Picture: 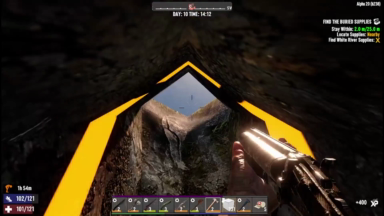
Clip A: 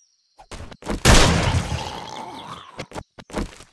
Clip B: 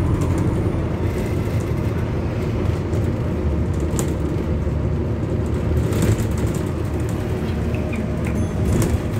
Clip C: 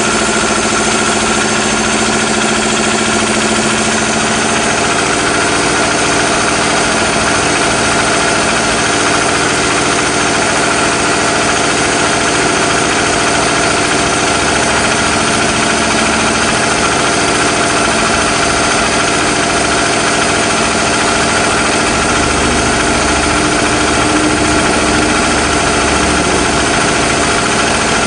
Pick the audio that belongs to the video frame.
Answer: A